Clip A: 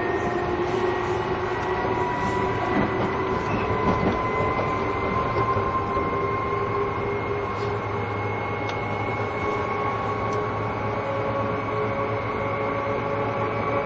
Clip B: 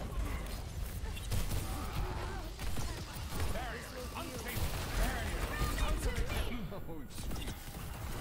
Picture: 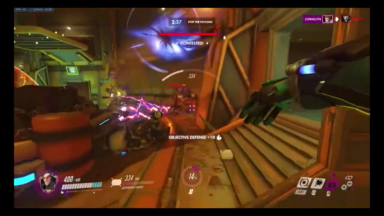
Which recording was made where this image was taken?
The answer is B